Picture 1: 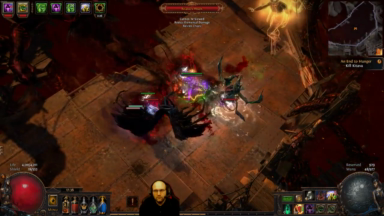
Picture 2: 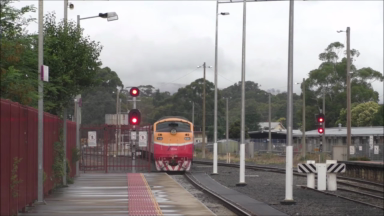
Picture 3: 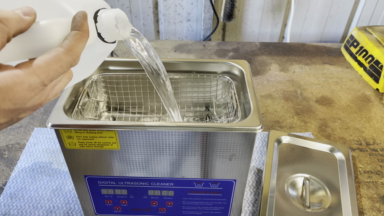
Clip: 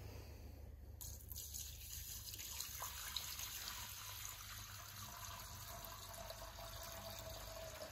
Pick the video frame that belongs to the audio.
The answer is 3